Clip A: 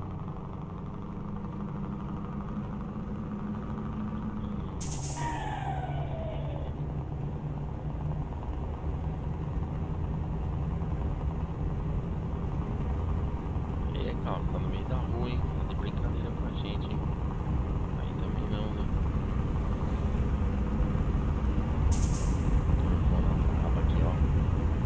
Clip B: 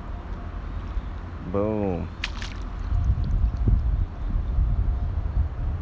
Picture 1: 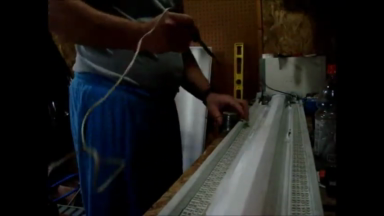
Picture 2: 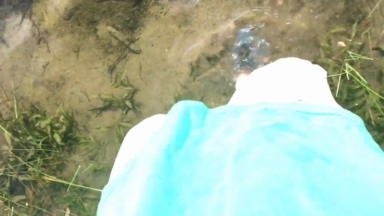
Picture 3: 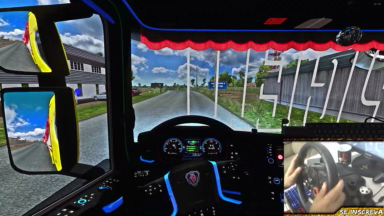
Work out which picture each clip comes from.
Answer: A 3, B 2